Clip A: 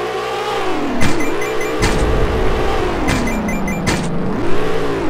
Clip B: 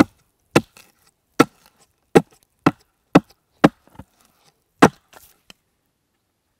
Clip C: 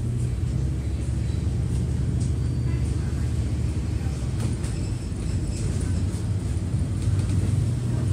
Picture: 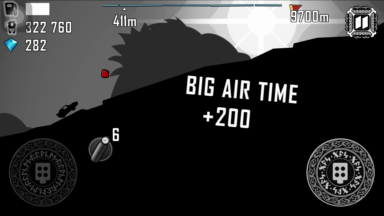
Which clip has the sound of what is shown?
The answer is A